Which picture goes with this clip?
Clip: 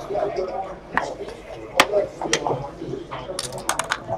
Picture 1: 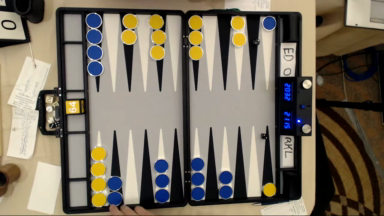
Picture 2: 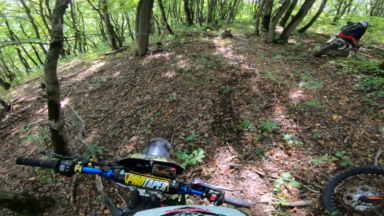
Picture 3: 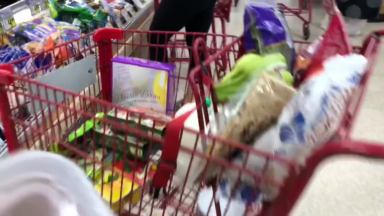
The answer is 1